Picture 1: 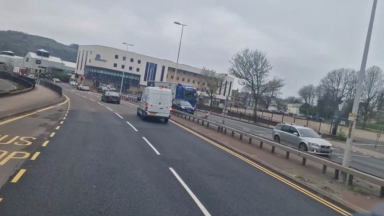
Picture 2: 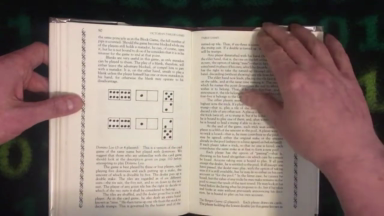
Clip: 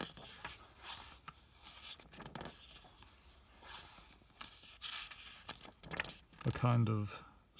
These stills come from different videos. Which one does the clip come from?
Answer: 2